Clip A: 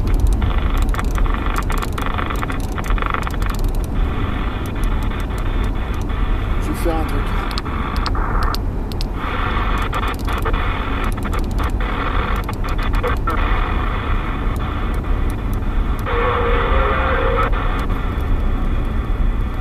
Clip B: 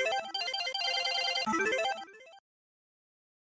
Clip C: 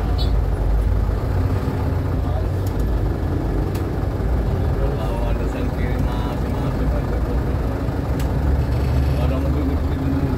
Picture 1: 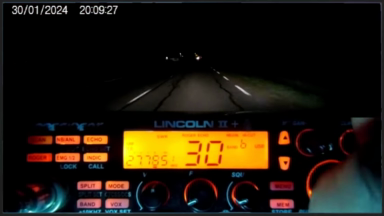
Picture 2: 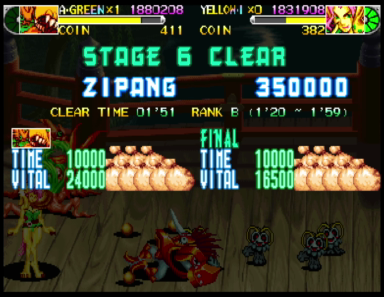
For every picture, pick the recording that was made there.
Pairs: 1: A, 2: B